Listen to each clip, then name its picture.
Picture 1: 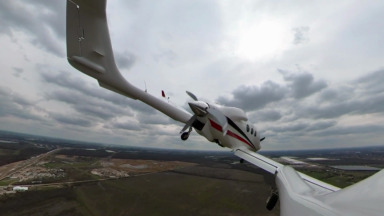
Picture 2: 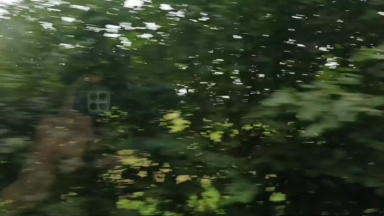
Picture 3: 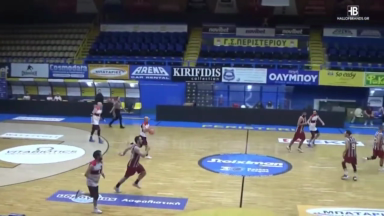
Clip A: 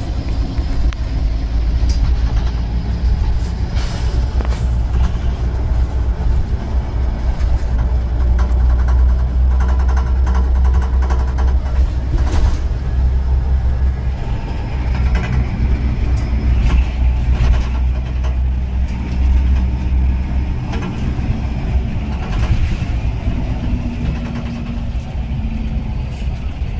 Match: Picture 2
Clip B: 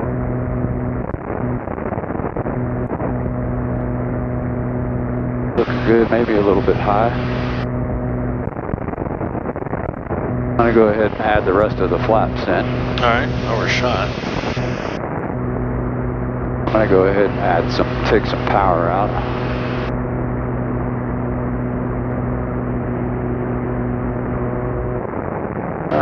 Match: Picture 1